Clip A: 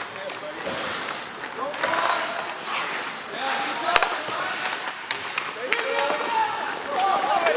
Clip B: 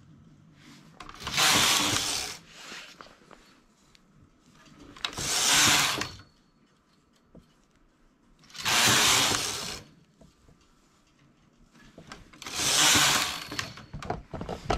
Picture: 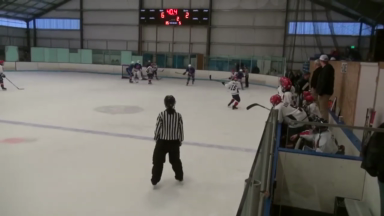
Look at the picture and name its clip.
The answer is A